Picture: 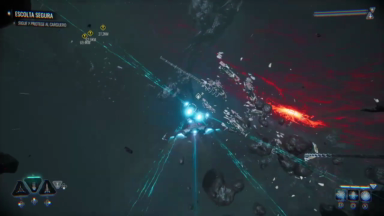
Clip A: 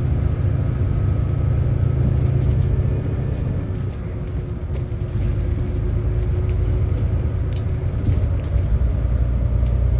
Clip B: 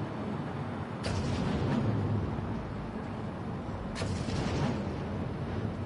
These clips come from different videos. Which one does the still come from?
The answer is B